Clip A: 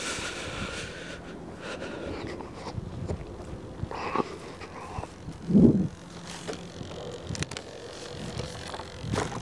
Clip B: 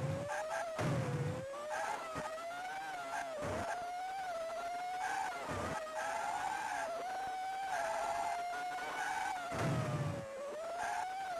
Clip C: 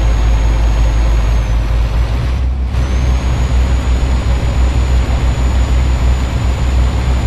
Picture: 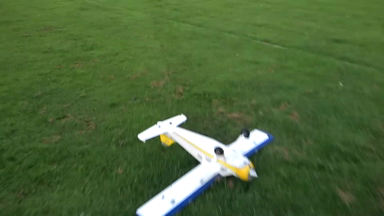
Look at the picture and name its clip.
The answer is A